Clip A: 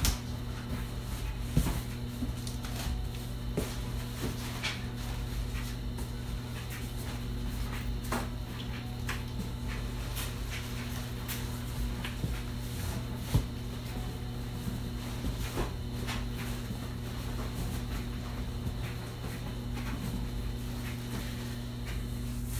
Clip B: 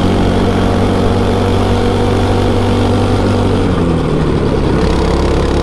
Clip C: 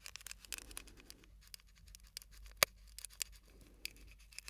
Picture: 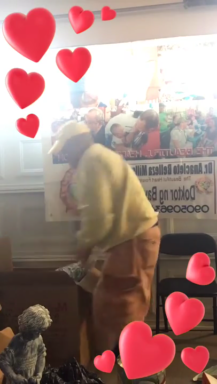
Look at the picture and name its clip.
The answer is A